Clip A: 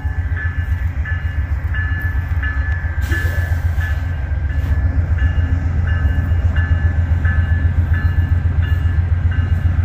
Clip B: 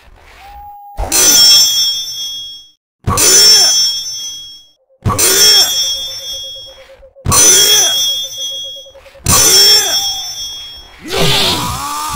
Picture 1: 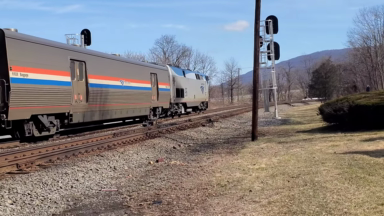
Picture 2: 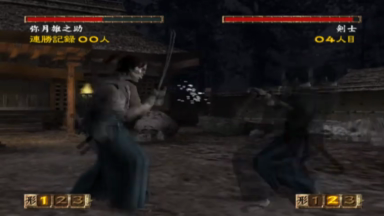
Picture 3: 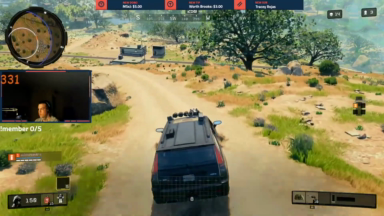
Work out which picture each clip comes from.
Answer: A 1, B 2